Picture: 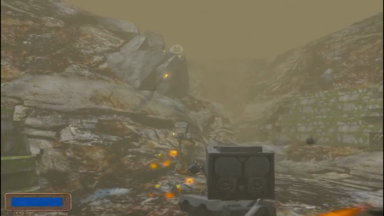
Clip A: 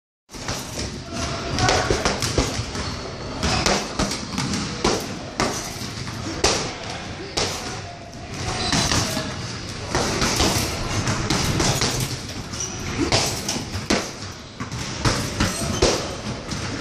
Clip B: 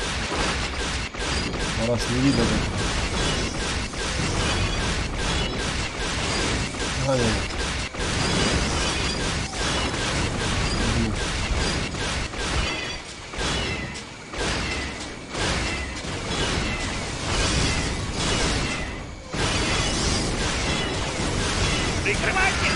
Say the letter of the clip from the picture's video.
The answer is B